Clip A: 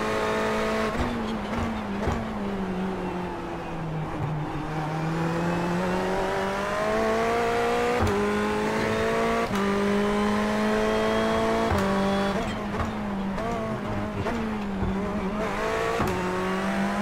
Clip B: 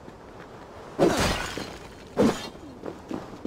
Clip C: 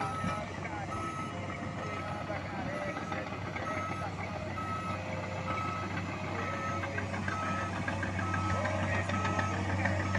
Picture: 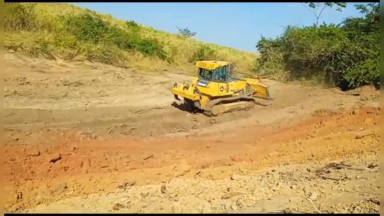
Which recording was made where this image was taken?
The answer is C